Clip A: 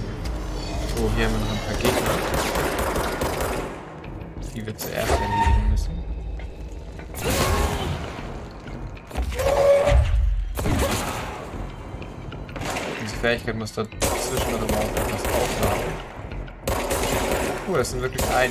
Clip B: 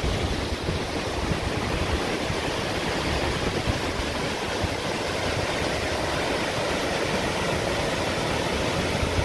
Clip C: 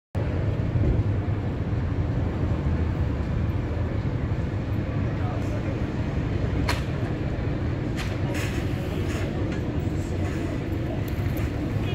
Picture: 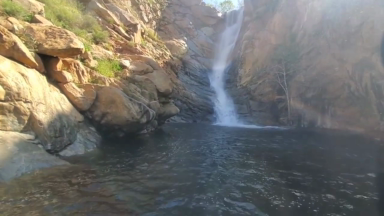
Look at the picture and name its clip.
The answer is B